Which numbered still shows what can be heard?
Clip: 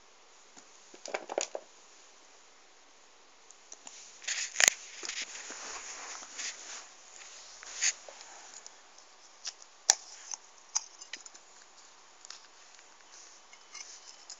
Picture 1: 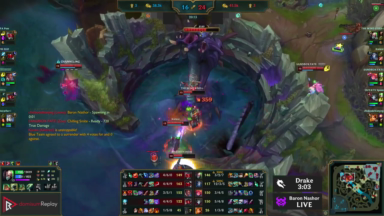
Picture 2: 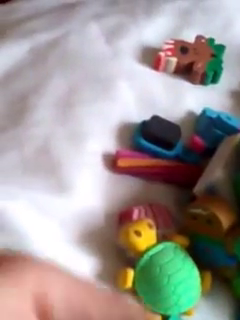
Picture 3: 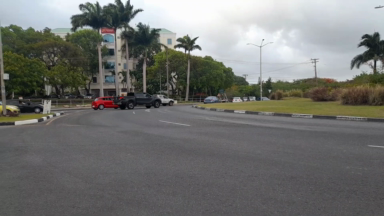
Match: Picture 2